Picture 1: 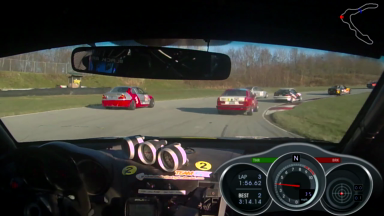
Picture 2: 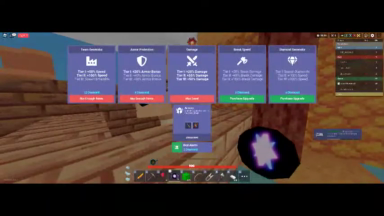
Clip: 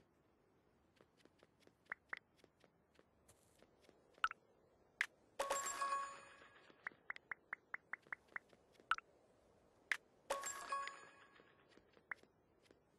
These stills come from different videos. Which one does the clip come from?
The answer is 2